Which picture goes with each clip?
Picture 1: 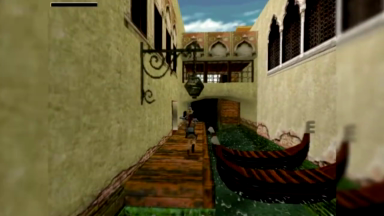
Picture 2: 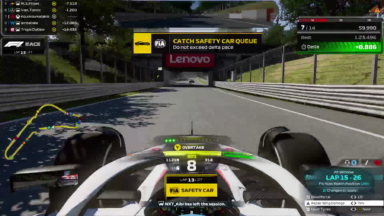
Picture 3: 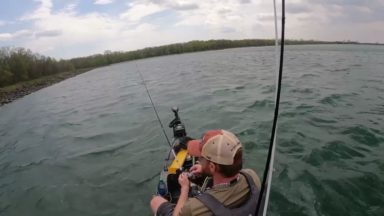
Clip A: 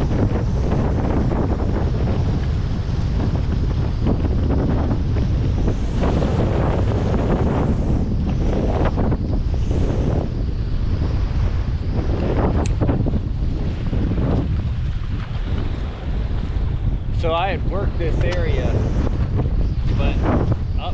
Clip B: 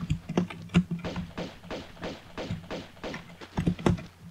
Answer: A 3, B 1